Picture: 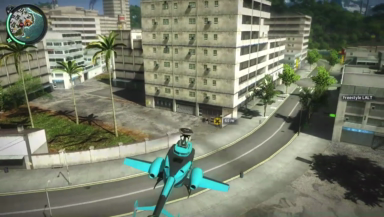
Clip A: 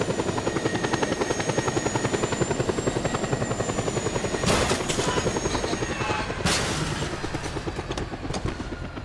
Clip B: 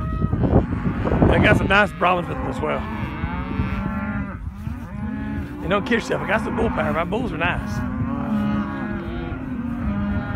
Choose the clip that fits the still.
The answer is A